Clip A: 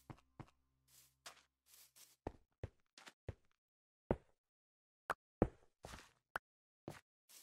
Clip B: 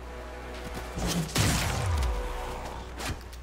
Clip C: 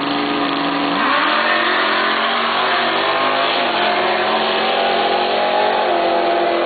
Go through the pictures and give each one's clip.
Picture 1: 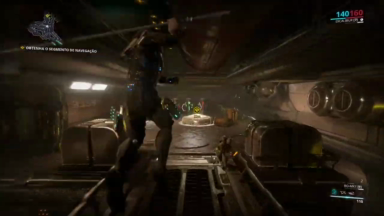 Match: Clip B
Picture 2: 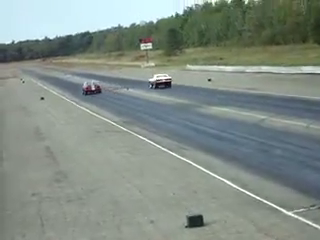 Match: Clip C